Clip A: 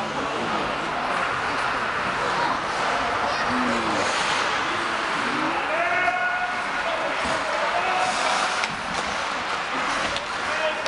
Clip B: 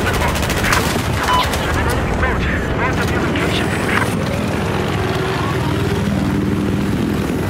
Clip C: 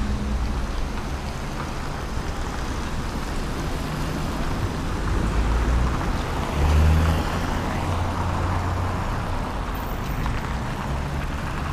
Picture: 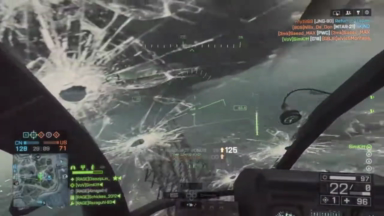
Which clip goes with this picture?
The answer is B